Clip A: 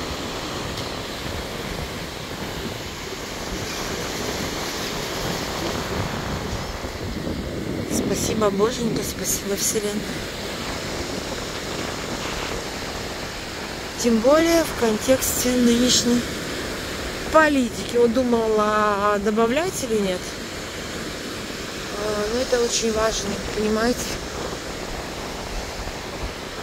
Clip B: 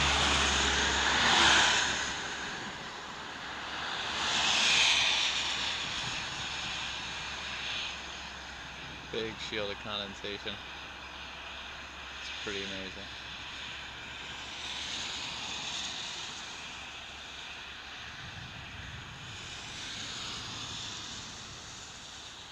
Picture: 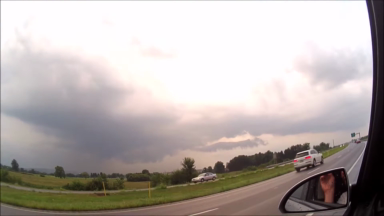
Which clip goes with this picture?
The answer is B